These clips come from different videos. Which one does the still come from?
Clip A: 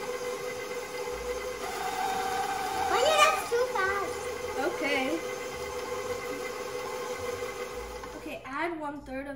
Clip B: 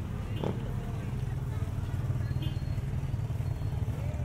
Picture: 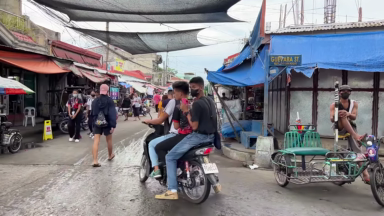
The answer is B